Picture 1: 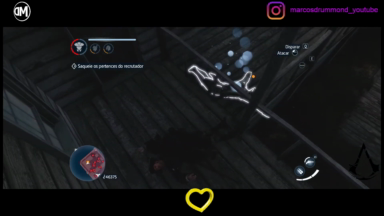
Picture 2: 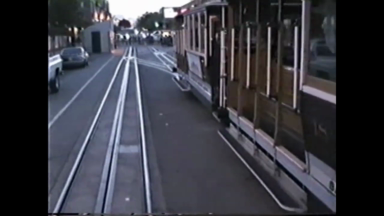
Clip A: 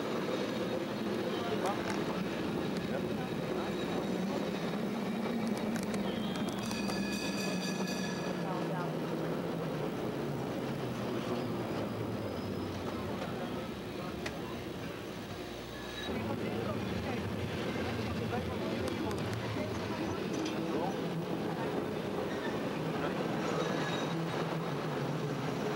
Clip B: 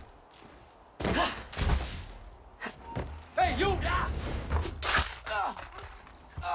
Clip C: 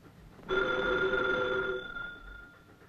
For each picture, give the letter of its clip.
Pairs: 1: B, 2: A